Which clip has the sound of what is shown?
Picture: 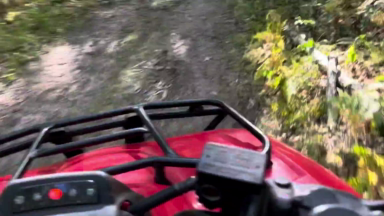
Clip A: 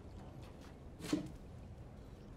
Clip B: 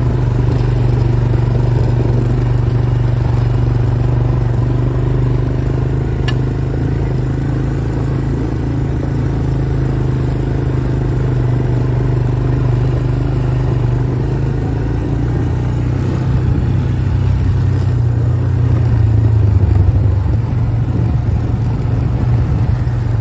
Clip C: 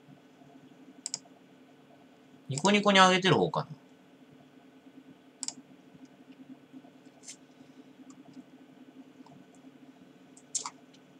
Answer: B